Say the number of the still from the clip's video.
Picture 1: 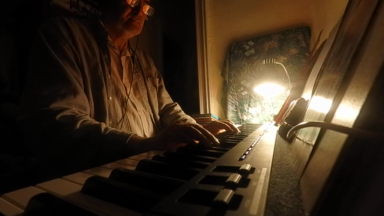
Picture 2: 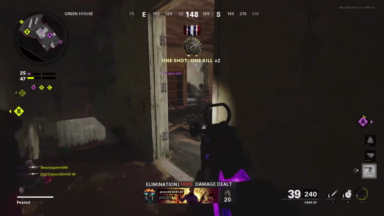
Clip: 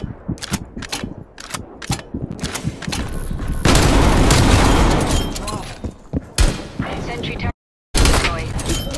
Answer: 2